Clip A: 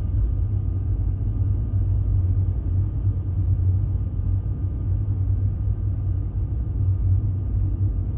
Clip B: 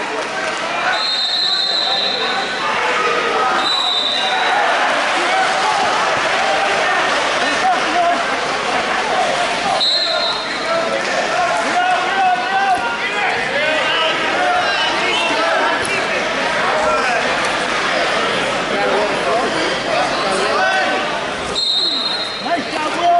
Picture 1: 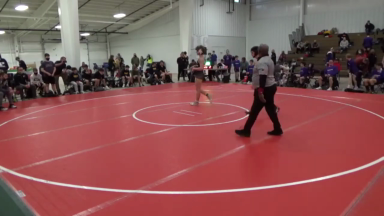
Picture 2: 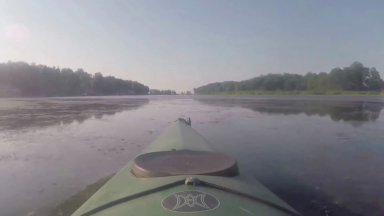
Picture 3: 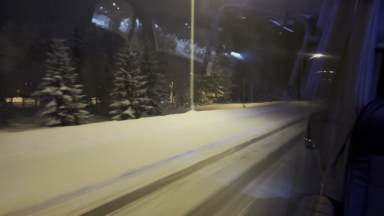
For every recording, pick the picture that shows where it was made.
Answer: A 3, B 1